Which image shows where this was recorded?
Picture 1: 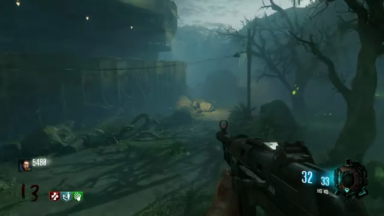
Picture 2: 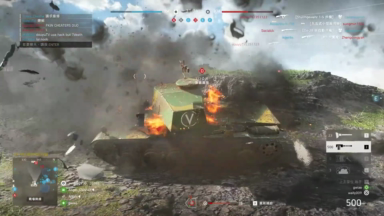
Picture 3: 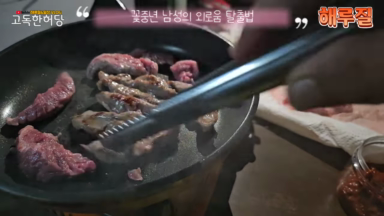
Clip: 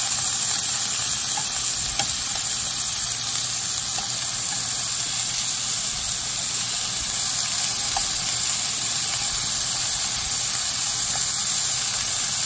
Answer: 3